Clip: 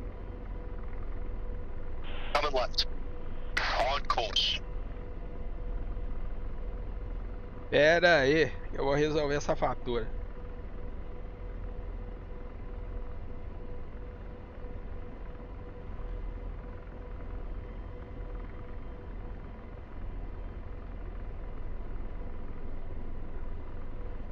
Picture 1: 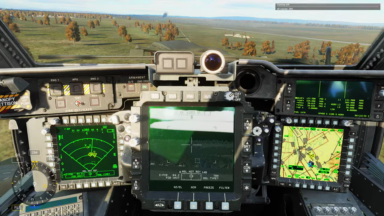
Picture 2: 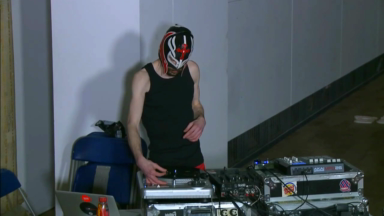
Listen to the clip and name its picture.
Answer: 1